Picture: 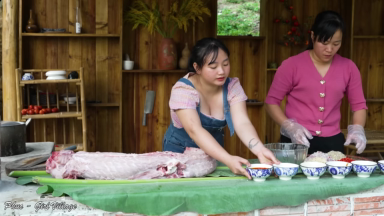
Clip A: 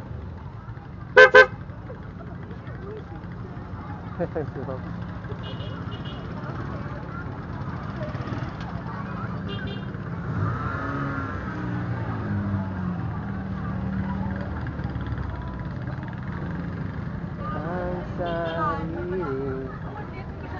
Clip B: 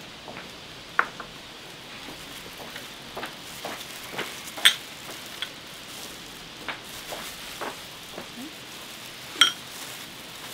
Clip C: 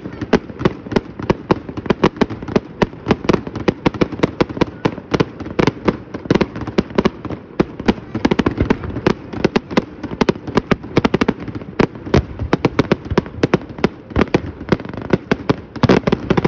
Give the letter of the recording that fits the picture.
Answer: B